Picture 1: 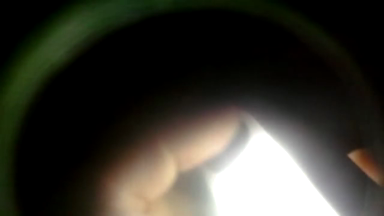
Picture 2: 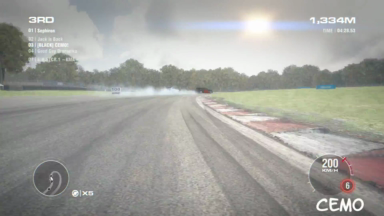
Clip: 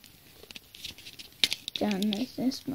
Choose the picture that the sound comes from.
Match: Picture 1